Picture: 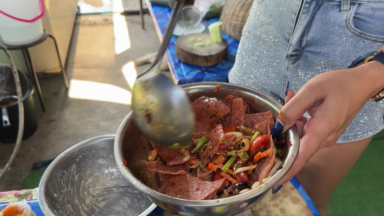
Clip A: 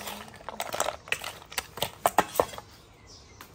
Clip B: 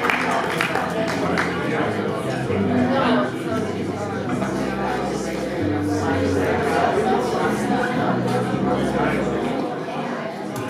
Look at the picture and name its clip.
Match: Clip A